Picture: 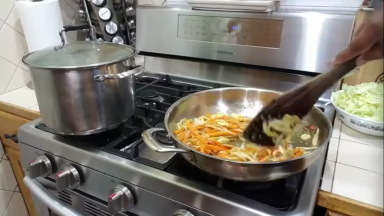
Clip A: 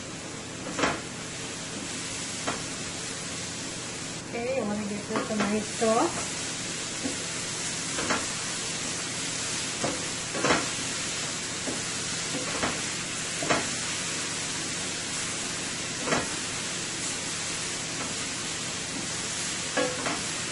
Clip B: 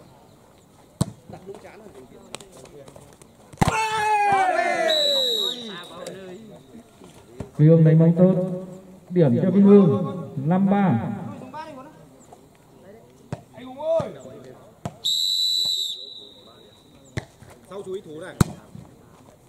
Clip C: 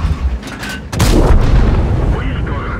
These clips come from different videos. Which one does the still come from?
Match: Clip A